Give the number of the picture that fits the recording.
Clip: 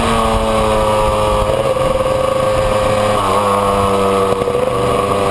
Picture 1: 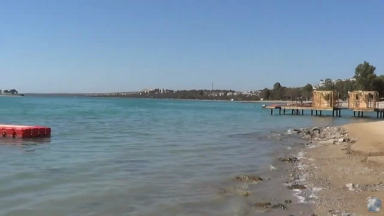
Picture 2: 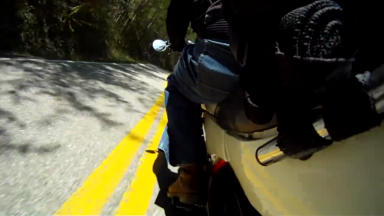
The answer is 2